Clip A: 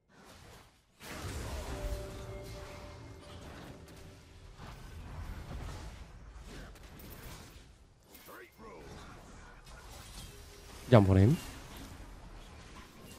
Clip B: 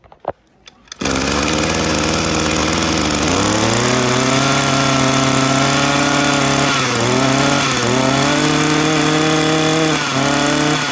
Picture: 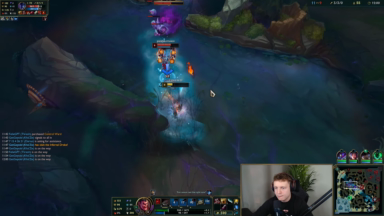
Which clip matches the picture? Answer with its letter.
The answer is A